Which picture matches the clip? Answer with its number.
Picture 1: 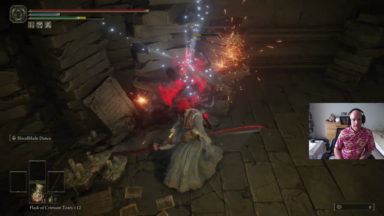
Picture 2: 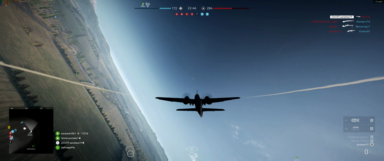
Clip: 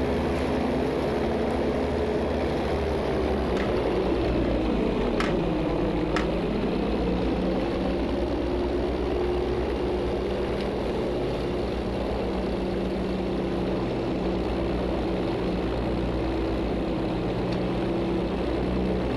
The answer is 2